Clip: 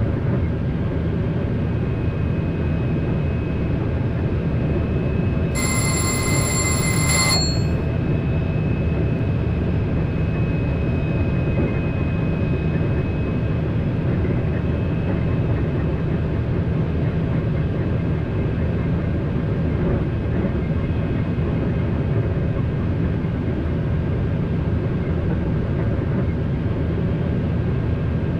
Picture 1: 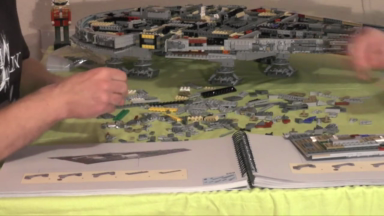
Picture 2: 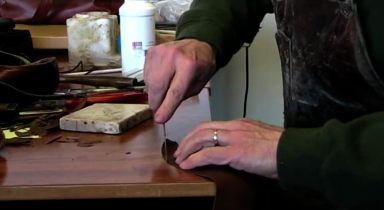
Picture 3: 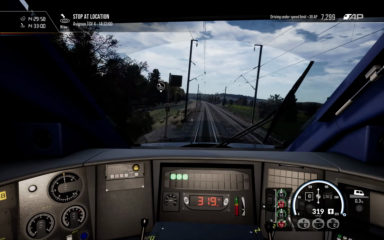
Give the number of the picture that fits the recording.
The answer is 3